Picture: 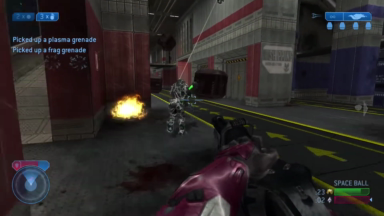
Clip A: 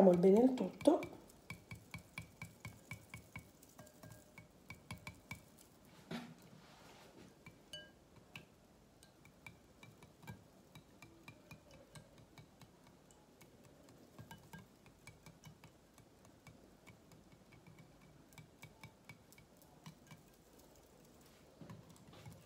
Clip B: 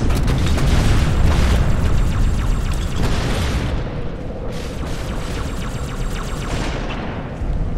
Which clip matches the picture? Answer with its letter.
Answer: B